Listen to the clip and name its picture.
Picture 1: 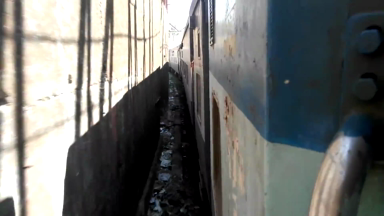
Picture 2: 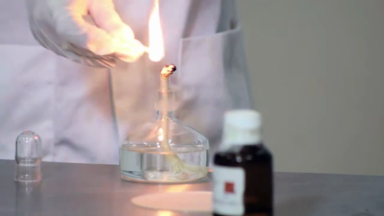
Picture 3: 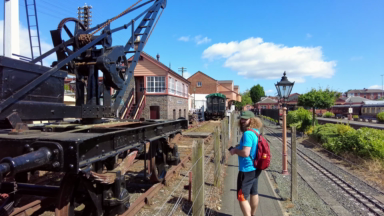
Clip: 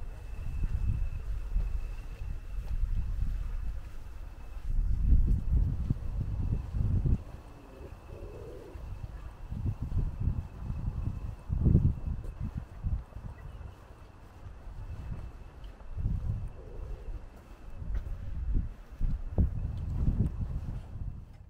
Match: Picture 3